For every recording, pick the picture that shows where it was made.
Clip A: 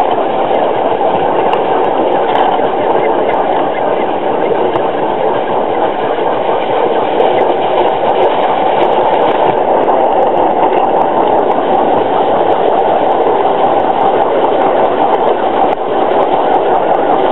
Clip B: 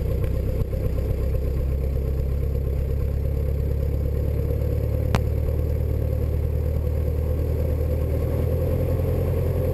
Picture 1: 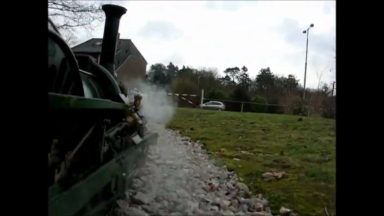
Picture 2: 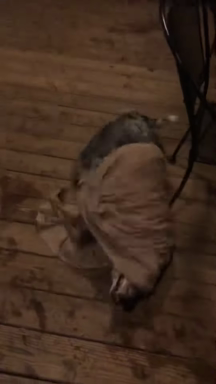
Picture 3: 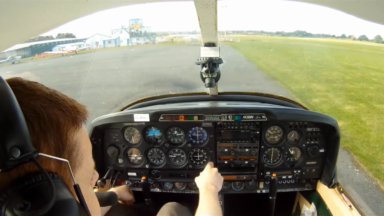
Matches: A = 1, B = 3